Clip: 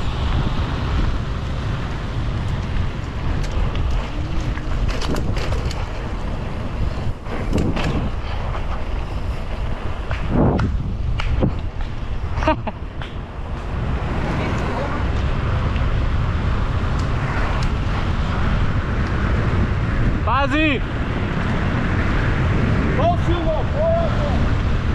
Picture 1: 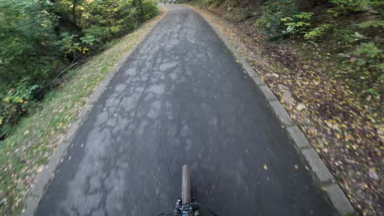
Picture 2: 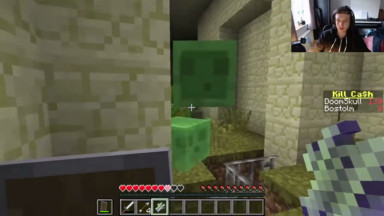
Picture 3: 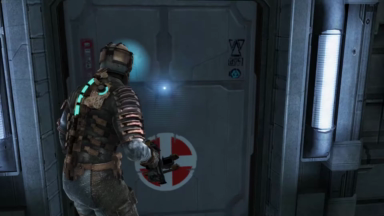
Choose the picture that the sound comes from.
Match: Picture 1